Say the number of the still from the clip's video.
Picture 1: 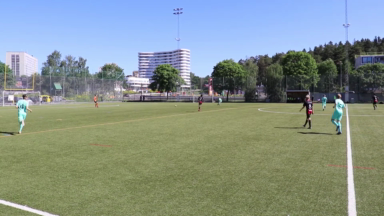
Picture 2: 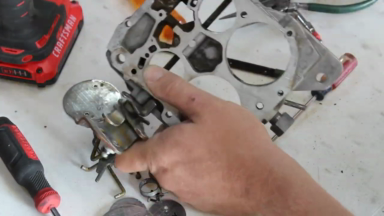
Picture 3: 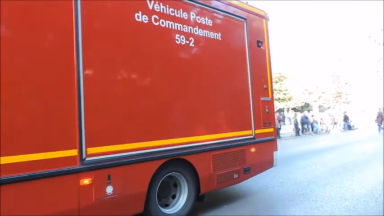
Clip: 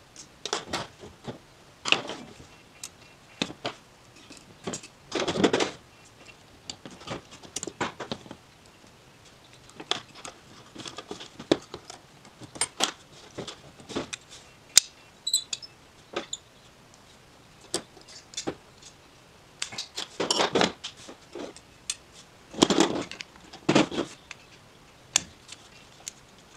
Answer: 2